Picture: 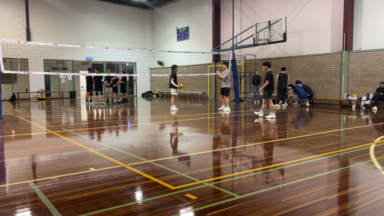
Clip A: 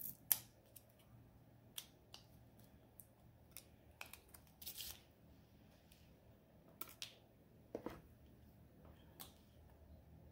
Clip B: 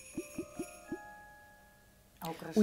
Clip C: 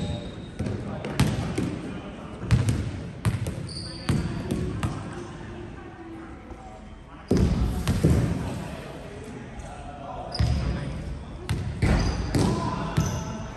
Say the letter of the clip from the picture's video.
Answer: C